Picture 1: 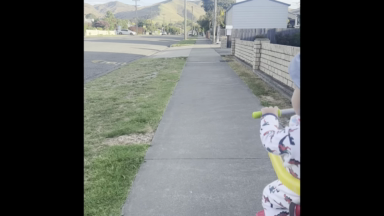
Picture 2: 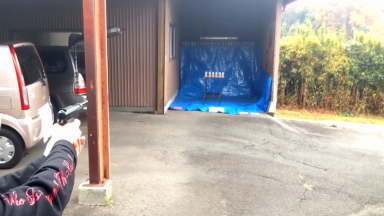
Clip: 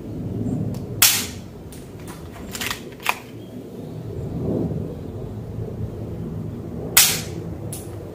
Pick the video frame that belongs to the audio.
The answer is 2